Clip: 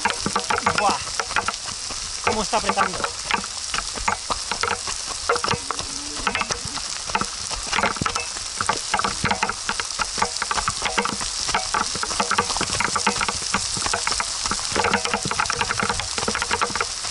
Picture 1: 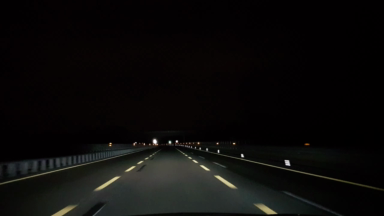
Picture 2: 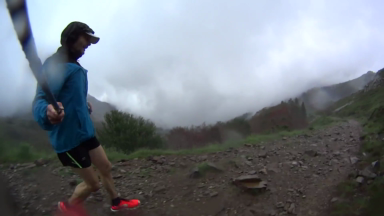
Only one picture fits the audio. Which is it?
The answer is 2